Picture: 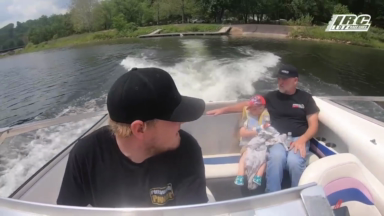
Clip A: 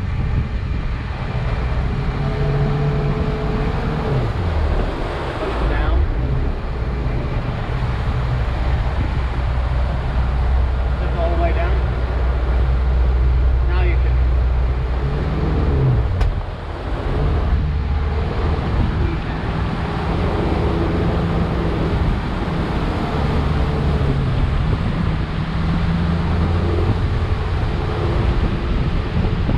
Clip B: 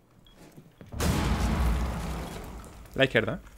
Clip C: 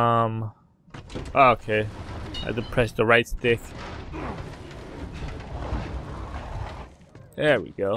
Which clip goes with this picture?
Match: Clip A